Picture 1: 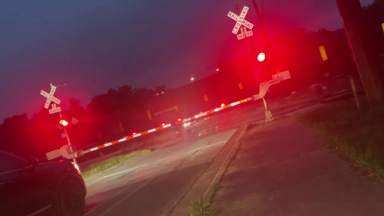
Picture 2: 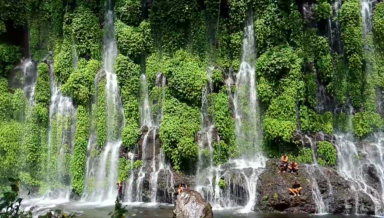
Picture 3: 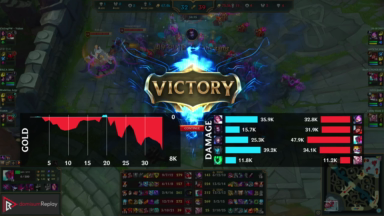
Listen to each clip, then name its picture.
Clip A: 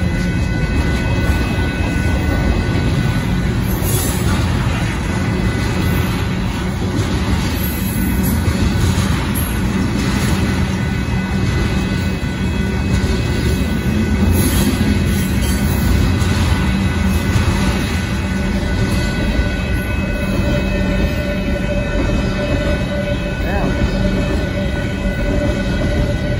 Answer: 1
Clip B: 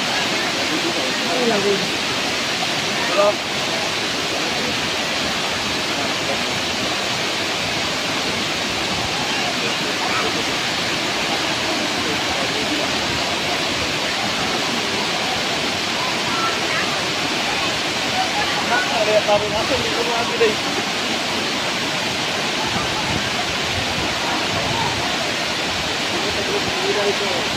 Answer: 2